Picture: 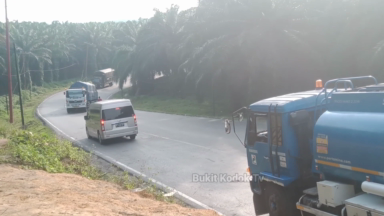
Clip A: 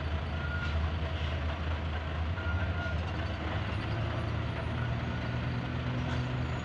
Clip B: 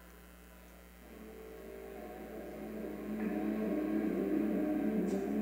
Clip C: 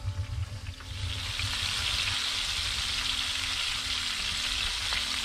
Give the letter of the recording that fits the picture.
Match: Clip A